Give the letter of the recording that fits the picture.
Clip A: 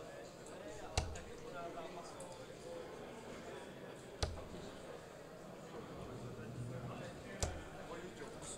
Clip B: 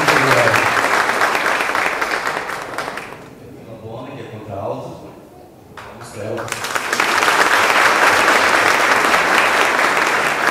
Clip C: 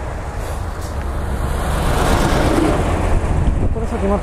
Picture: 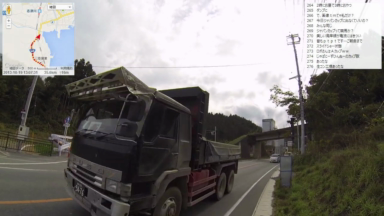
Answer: C